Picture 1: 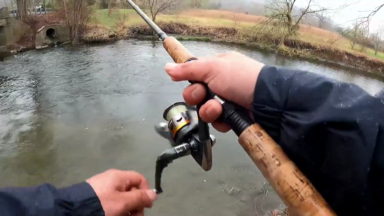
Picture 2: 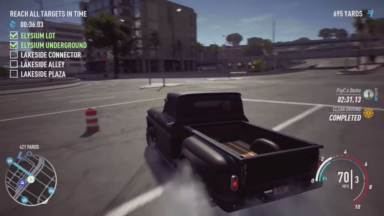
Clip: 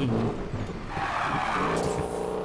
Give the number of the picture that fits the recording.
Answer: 2